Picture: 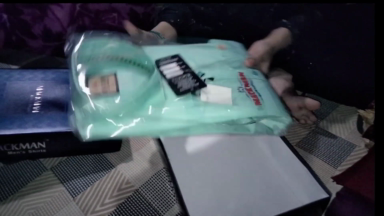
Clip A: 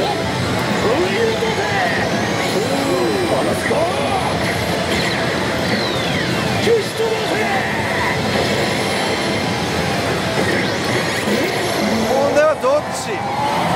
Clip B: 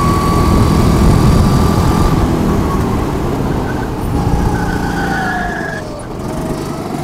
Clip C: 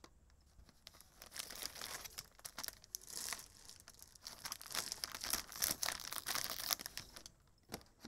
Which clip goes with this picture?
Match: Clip C